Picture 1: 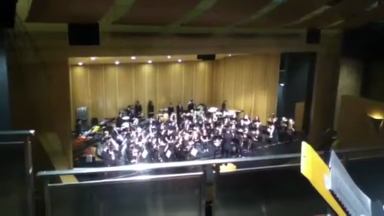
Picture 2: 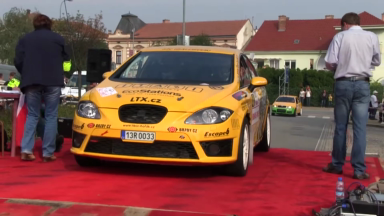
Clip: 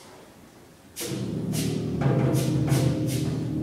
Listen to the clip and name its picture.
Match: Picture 1